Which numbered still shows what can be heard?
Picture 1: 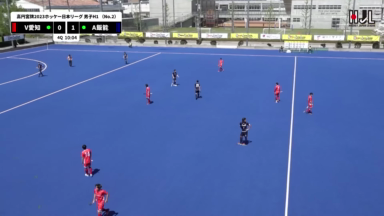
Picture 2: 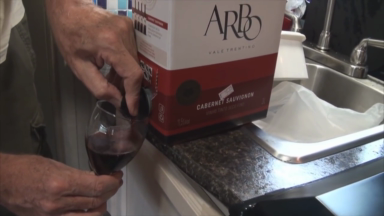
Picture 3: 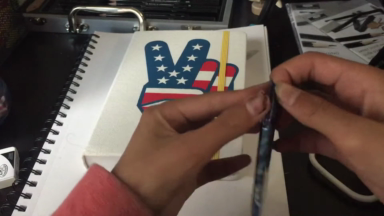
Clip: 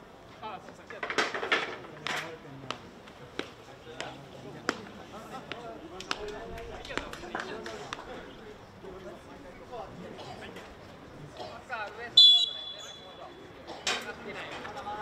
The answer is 1